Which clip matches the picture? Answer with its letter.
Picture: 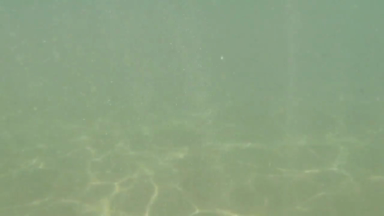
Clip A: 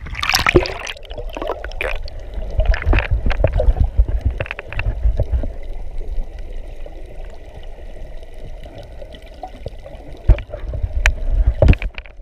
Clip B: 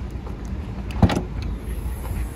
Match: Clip A